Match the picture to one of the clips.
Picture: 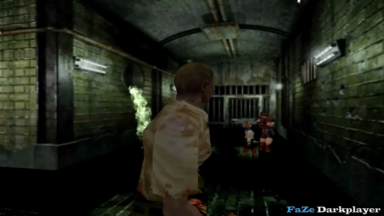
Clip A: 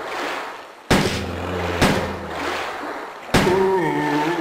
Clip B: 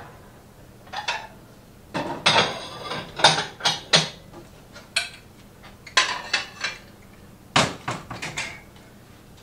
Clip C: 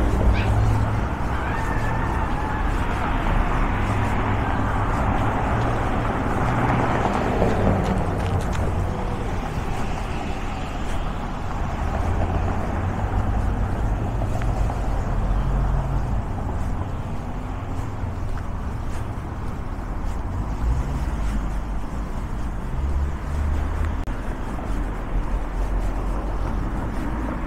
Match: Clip A